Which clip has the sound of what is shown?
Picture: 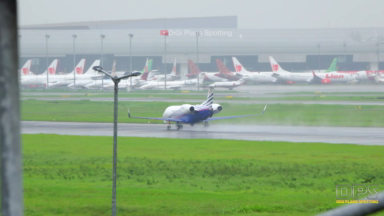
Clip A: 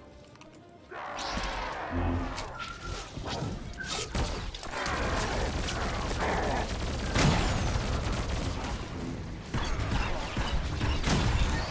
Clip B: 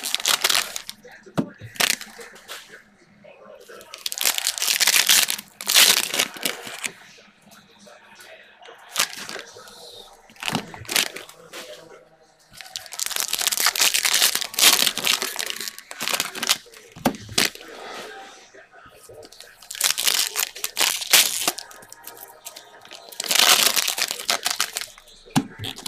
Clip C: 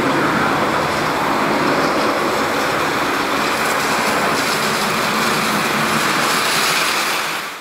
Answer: C